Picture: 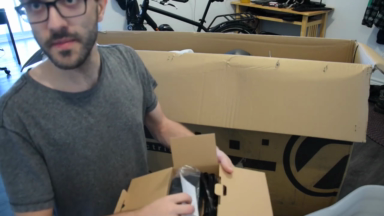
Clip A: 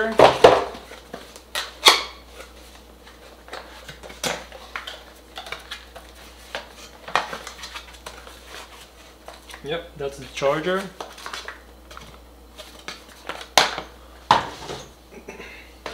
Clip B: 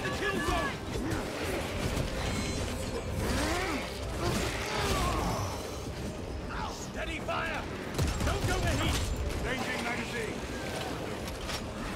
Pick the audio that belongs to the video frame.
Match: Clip A